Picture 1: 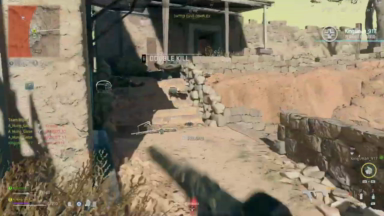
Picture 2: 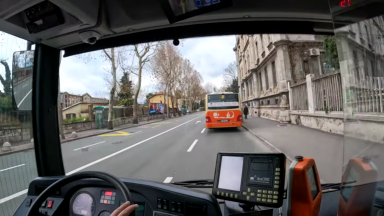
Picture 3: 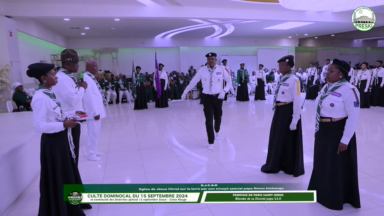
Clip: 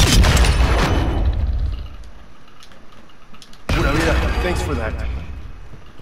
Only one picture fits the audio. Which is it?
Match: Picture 1